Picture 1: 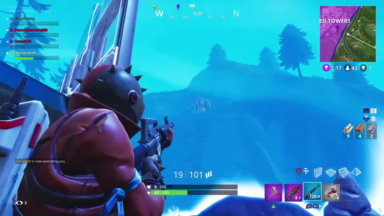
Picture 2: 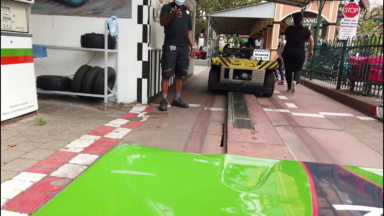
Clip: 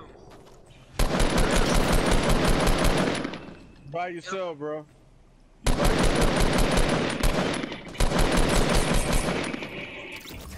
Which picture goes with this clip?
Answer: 1